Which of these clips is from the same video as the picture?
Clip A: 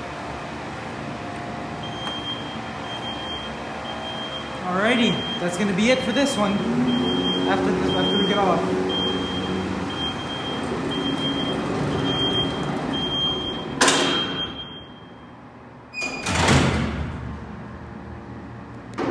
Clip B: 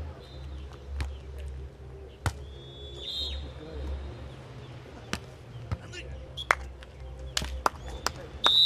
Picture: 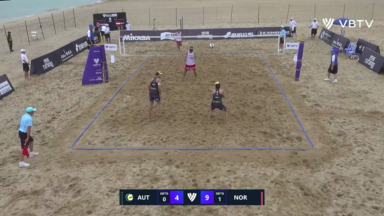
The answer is B